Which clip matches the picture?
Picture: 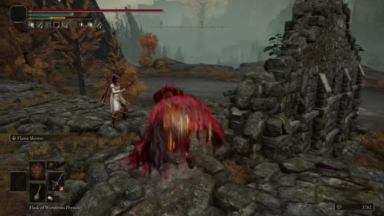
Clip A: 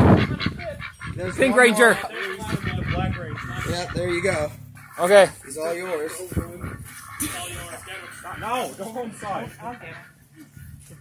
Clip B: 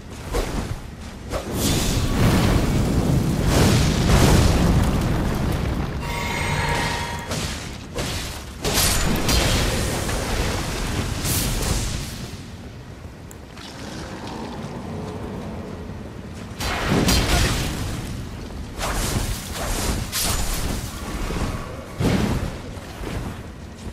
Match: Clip B